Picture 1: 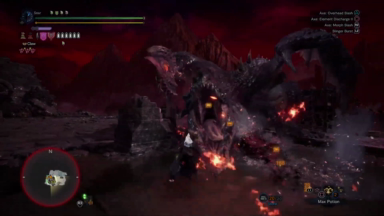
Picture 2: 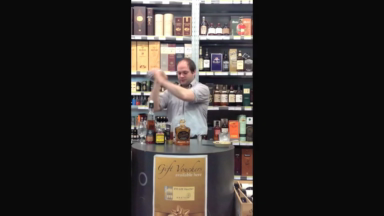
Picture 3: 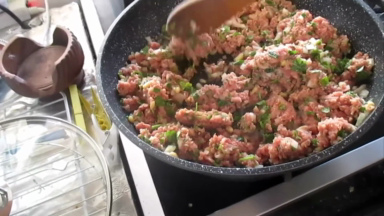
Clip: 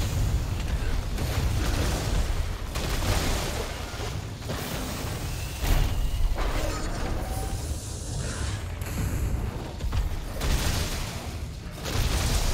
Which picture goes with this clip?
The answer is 1